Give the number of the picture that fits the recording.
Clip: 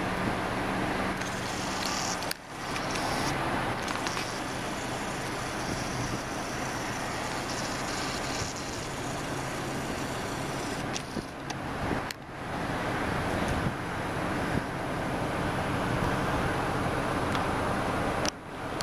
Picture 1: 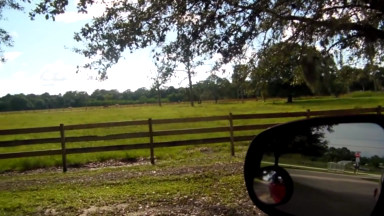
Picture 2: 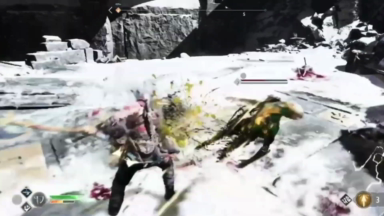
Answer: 1